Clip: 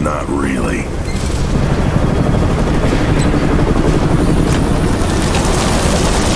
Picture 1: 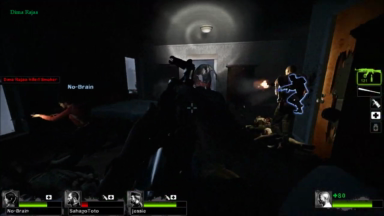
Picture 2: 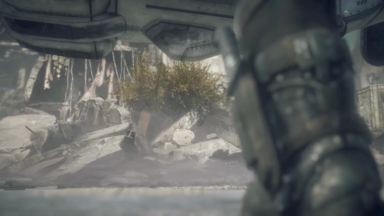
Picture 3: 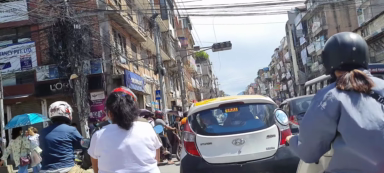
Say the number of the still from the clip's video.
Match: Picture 2